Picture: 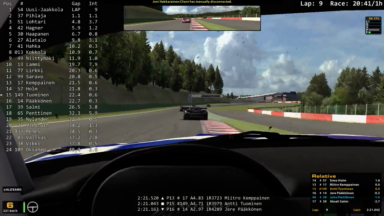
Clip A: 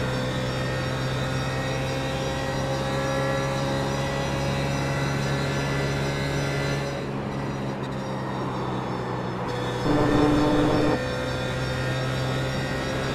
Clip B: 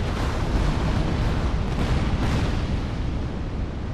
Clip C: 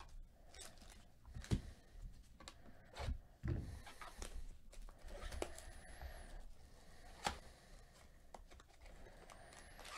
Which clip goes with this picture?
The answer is A